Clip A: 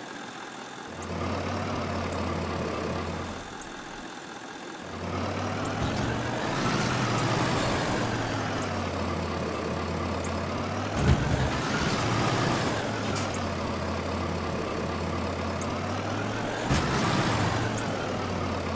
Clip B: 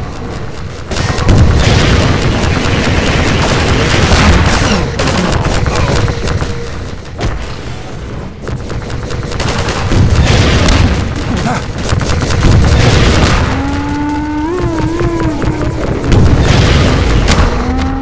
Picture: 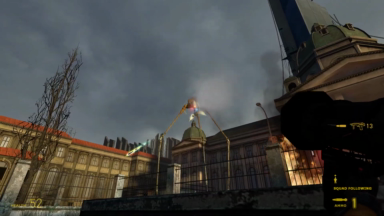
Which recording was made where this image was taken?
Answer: B